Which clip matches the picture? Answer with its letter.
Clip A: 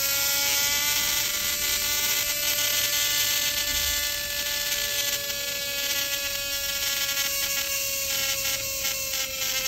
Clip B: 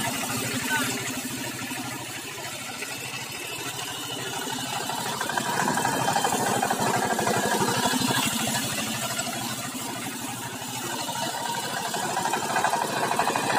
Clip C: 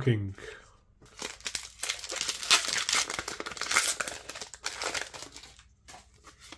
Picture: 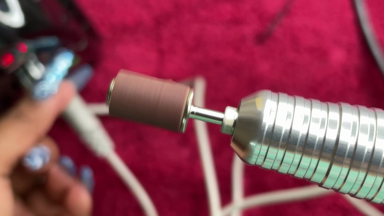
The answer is A